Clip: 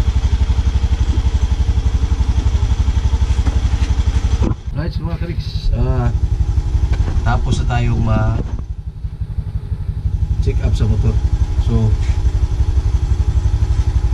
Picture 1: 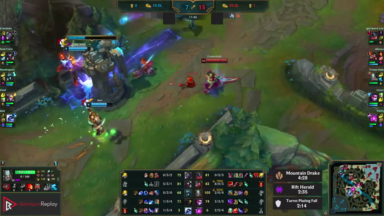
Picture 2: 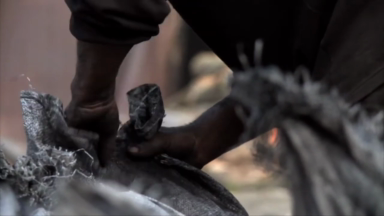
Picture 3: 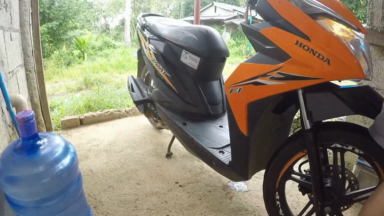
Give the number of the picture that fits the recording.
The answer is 3